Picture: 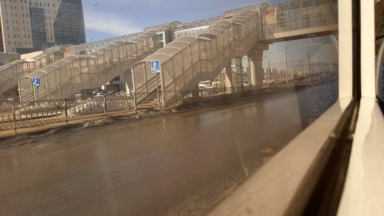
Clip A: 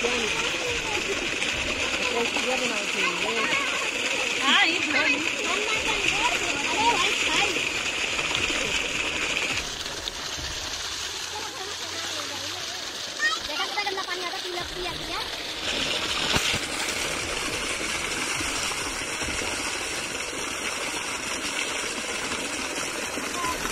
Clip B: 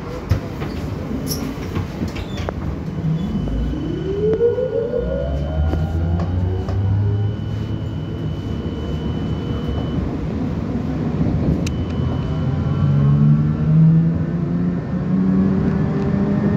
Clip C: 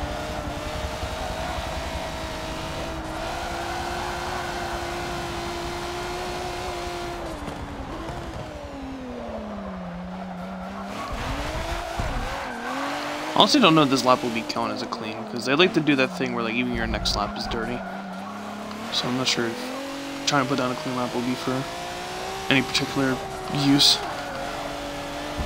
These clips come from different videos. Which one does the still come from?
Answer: B